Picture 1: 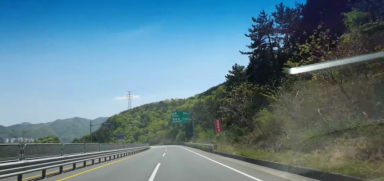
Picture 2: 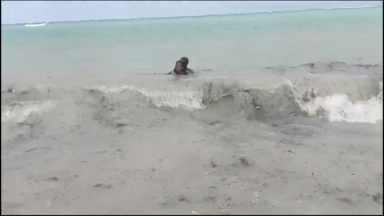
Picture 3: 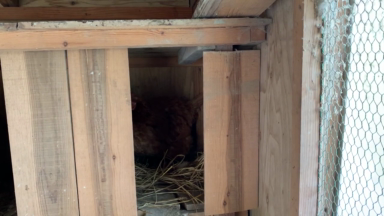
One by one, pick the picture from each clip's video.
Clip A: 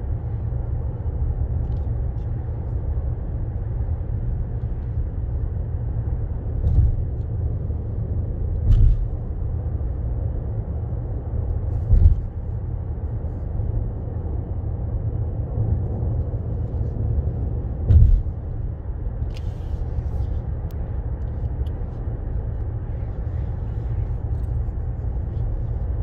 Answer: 1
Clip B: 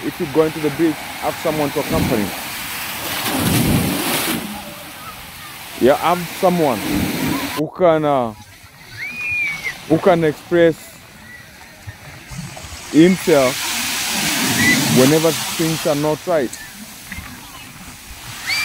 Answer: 2